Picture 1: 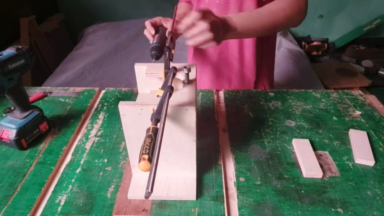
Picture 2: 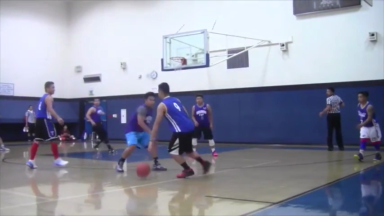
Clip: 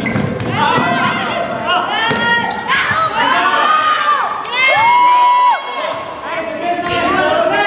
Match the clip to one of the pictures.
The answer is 2